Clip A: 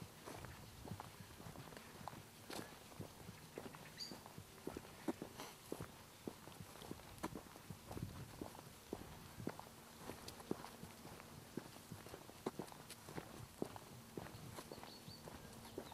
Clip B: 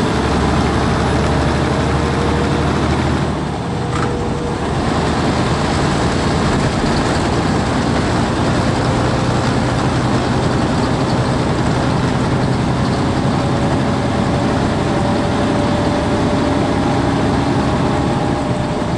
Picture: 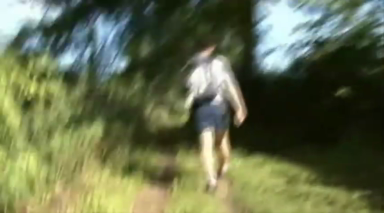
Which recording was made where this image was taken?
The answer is A